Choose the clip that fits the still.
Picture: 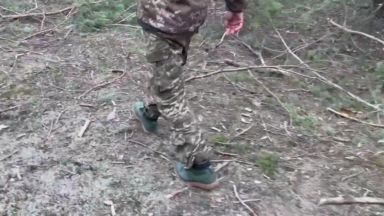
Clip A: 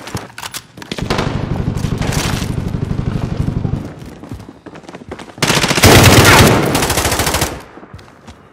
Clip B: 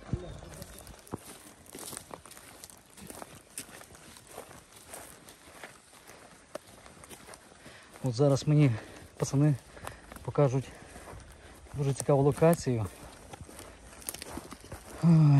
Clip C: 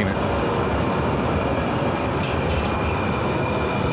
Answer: B